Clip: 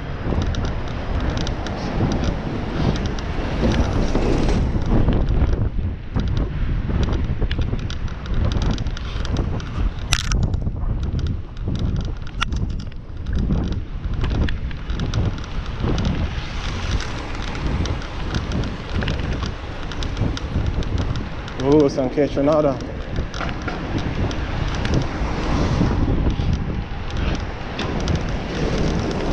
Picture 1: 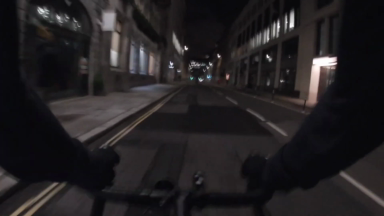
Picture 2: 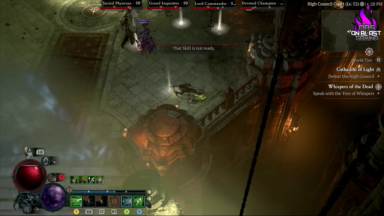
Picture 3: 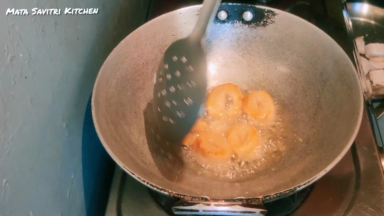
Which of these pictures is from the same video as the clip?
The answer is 1